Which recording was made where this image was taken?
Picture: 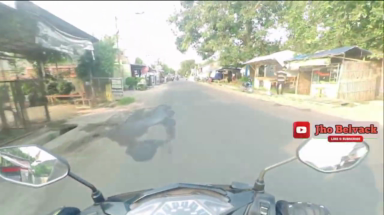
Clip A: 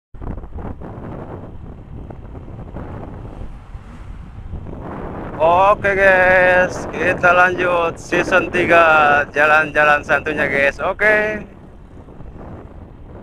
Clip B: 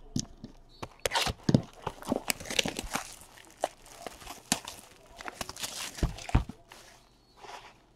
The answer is A